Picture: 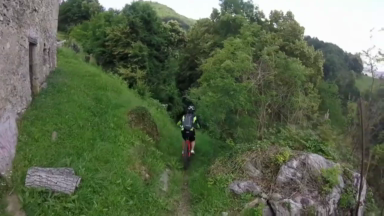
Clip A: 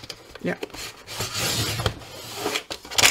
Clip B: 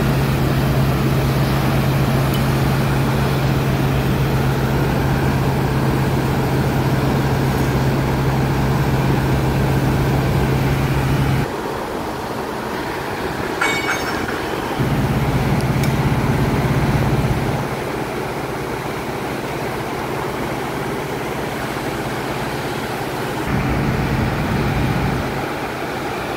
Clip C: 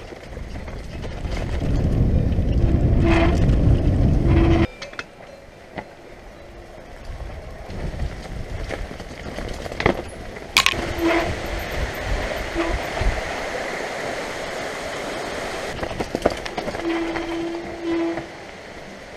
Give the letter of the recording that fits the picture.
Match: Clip C